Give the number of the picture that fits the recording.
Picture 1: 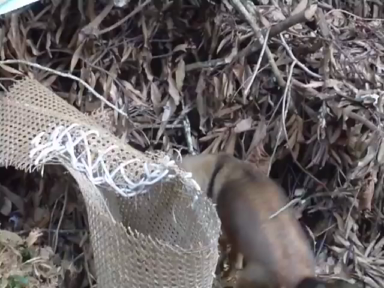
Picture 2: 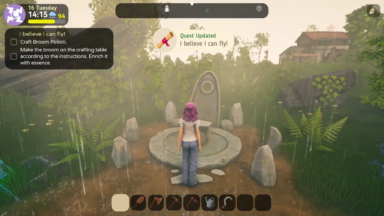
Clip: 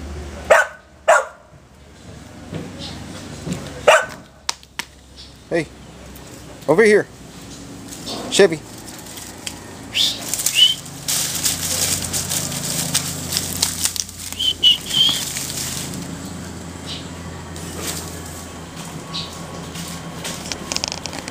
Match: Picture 1